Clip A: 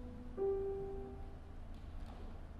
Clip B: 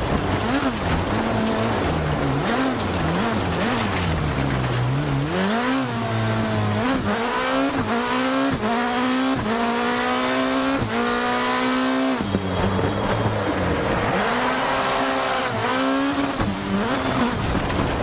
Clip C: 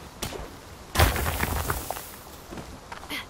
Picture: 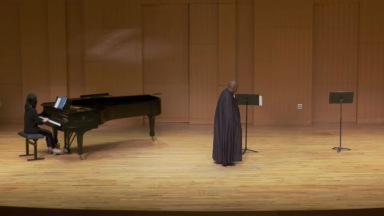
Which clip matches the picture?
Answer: A